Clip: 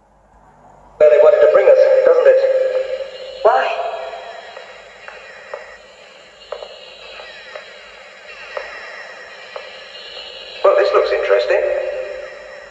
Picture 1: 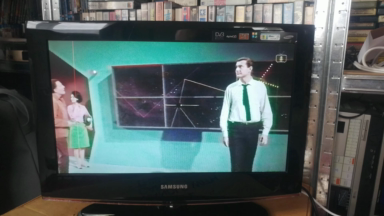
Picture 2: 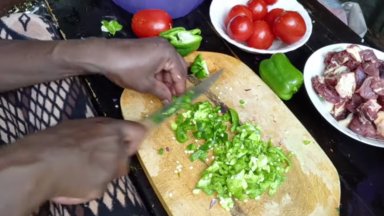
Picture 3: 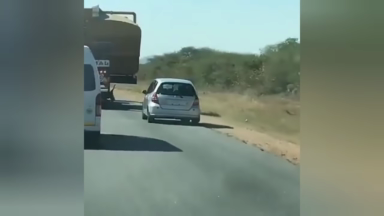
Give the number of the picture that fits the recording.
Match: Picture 1